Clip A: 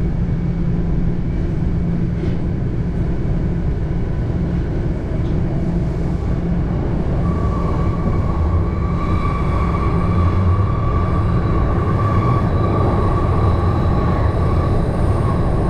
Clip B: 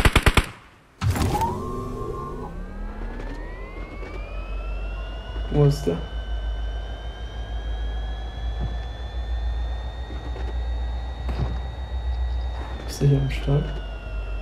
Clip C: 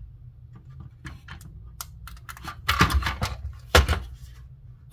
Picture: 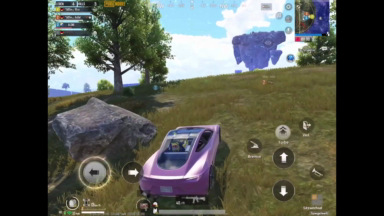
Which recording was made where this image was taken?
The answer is B